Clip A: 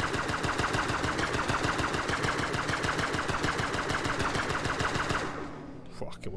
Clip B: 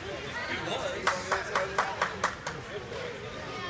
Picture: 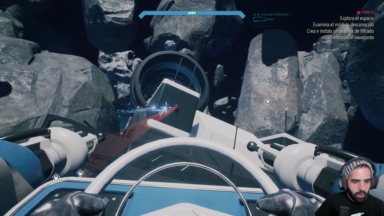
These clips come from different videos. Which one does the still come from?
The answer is A